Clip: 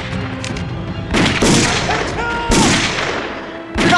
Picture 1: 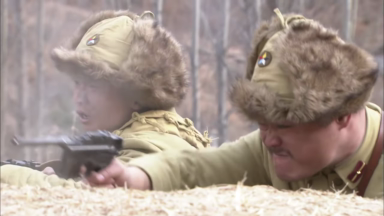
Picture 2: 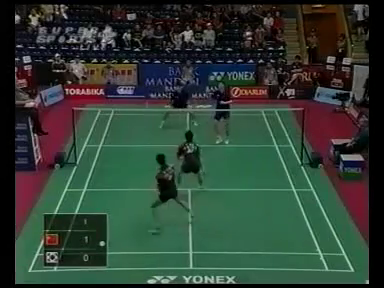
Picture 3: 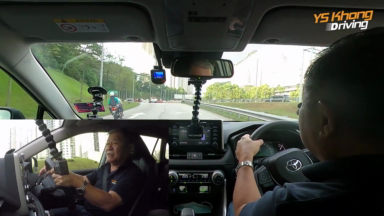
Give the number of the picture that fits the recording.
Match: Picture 1